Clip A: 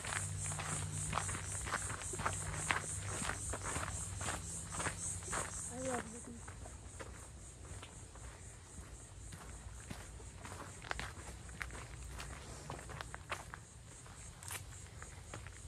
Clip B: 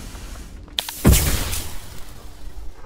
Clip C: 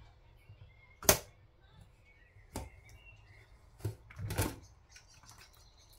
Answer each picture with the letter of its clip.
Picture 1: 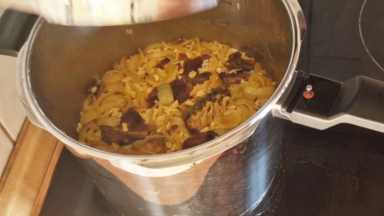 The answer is C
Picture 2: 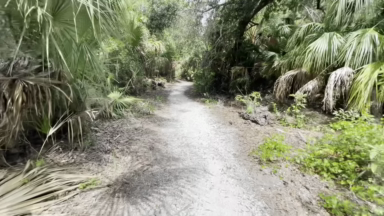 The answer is A